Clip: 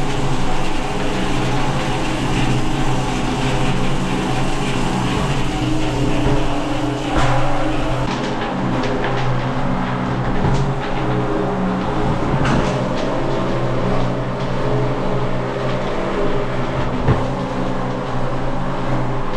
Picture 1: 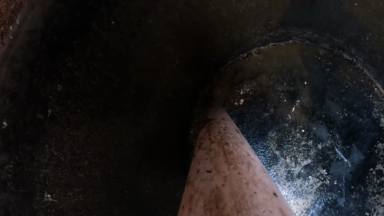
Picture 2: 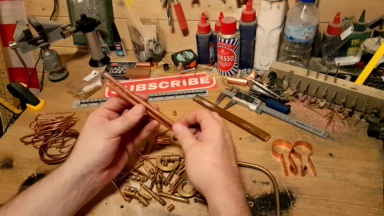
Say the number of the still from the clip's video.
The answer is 1